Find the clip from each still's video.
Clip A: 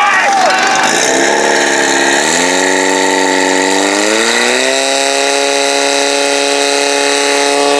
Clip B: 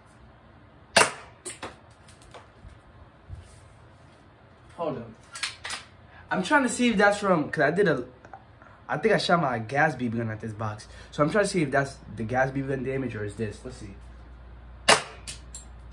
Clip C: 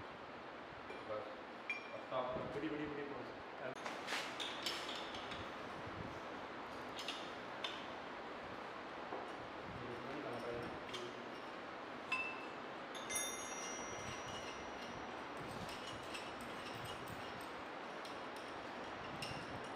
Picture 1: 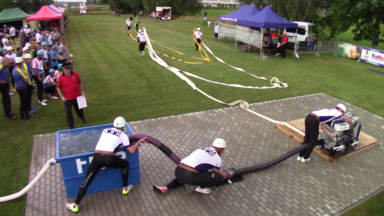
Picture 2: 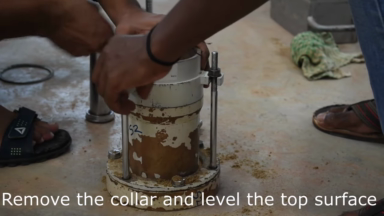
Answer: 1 A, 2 C